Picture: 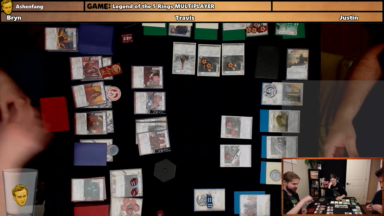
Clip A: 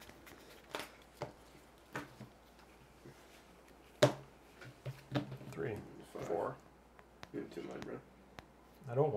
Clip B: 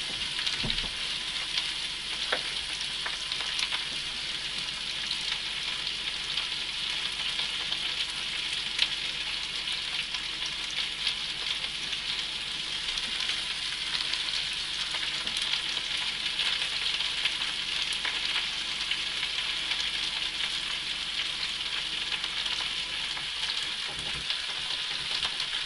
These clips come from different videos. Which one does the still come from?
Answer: A